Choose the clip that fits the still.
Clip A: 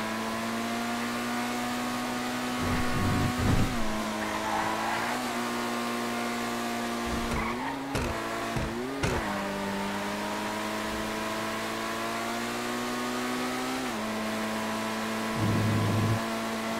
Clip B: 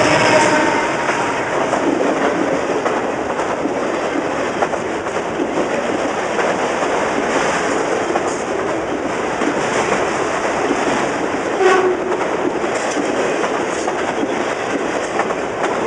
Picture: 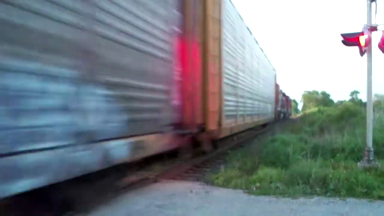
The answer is B